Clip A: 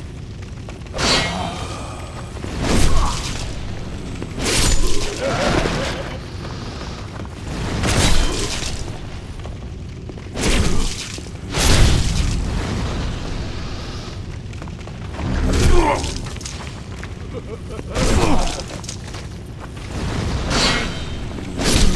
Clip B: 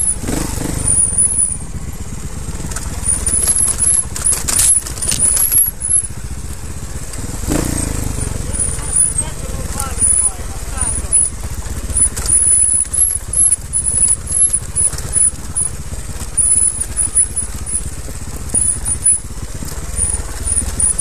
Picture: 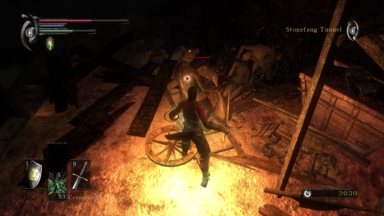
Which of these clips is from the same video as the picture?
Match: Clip A